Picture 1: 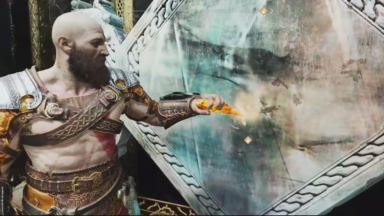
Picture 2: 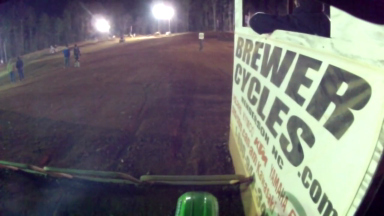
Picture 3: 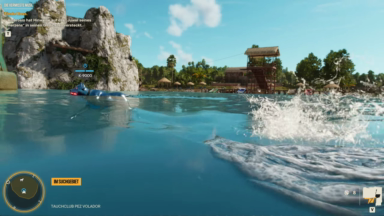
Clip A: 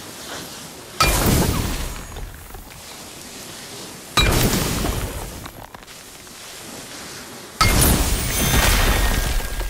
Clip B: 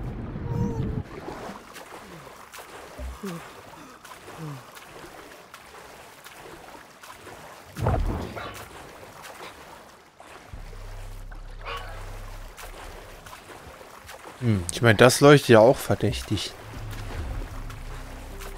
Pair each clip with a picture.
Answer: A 1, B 3